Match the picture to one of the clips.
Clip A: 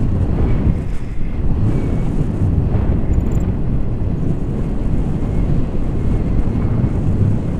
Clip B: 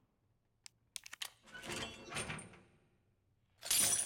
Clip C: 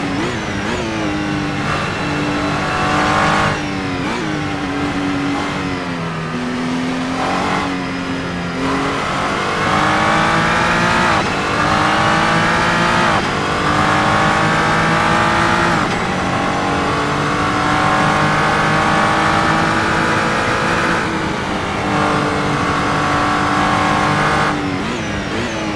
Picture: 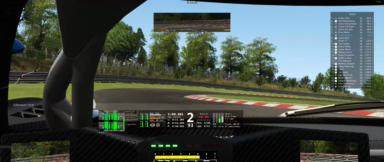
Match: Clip C